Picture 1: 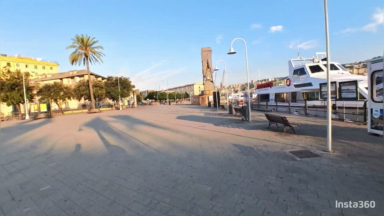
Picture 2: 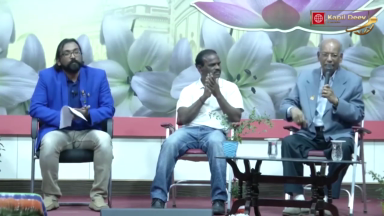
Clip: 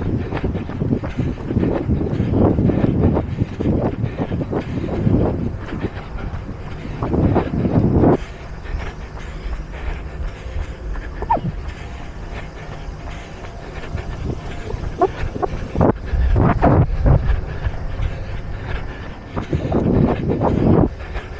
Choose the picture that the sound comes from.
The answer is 1